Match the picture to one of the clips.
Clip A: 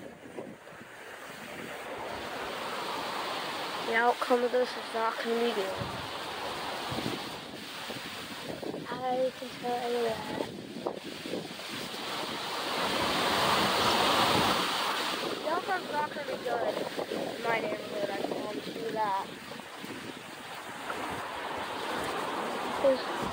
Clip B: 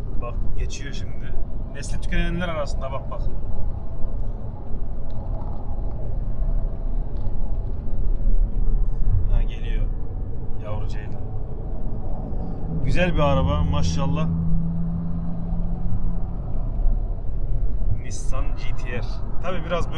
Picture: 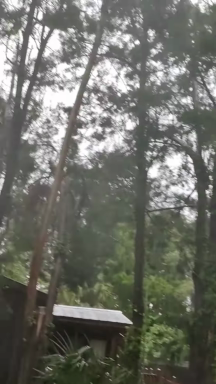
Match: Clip A